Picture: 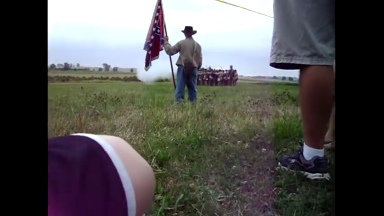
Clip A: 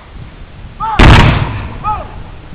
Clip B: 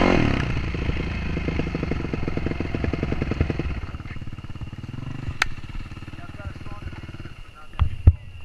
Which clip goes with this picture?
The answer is A